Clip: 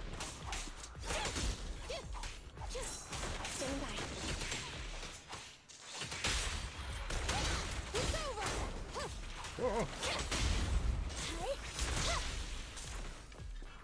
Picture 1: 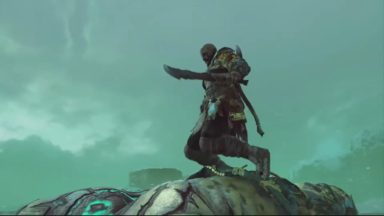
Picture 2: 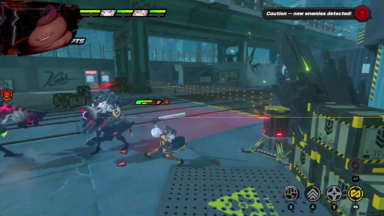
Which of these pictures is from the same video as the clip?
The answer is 2